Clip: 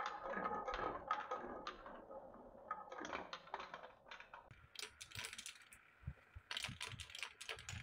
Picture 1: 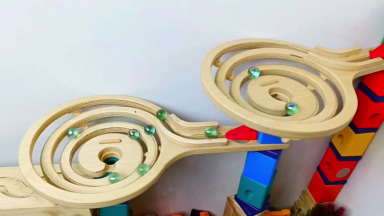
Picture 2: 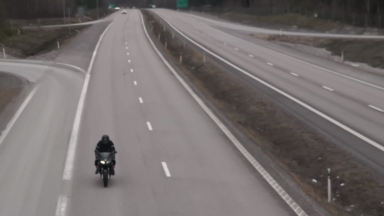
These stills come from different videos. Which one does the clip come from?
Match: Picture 1